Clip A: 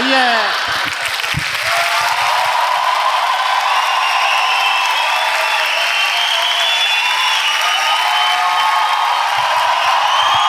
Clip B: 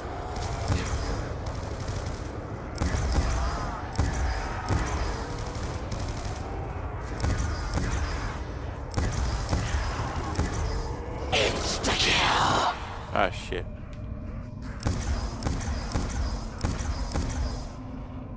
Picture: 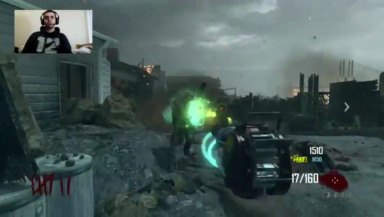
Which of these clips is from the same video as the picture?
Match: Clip B